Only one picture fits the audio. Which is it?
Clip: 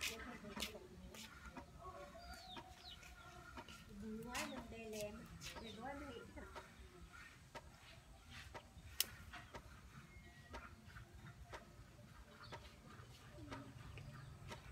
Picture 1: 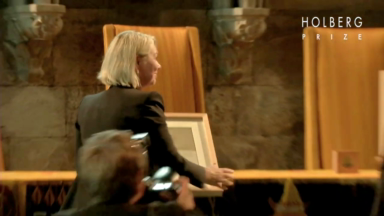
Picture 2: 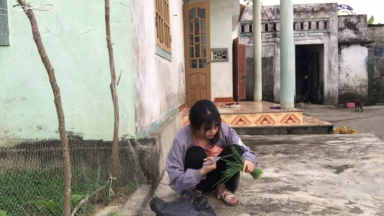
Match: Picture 2